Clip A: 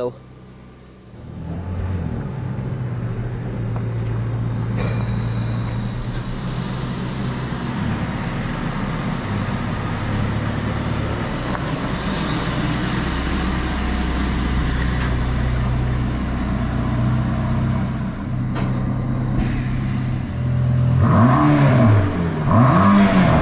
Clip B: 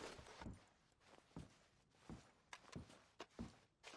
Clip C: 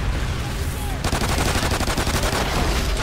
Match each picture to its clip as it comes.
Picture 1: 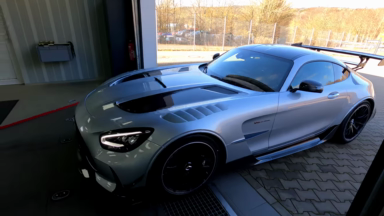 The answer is A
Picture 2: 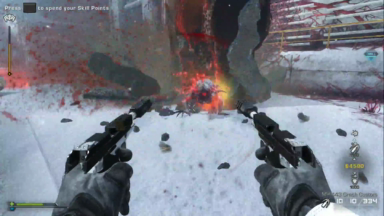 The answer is C